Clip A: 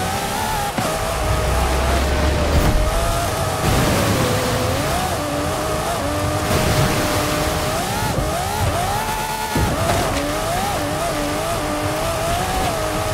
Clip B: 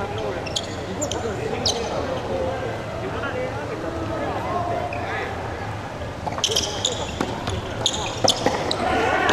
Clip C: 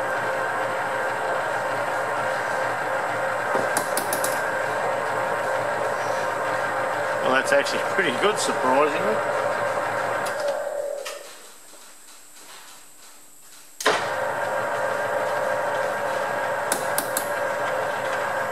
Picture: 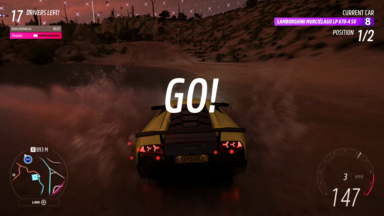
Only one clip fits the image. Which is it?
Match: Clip A